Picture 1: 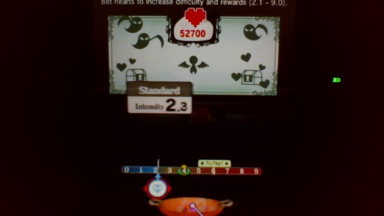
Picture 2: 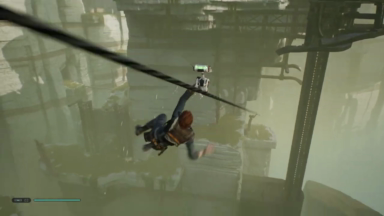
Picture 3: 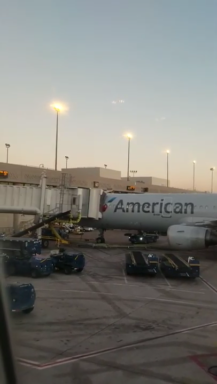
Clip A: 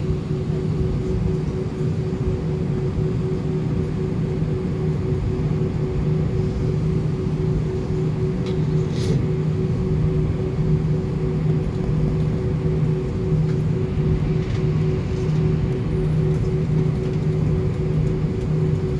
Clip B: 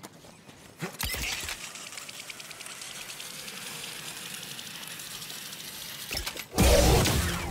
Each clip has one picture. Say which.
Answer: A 3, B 2